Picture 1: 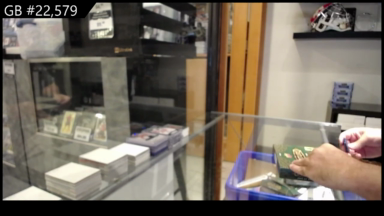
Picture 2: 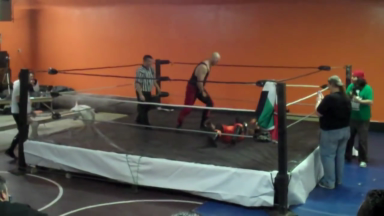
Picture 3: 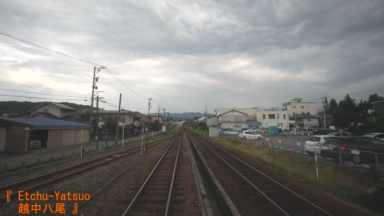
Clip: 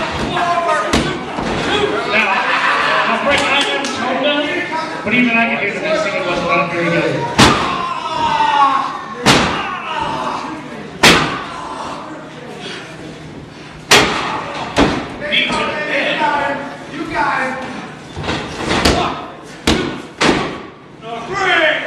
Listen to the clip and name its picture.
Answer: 2